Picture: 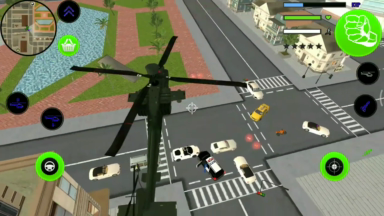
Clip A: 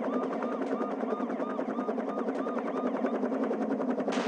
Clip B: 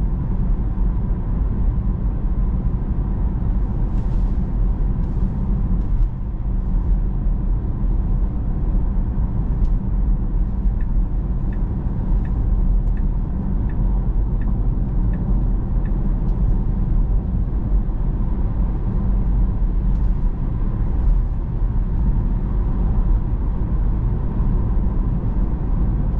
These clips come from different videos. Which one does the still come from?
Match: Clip A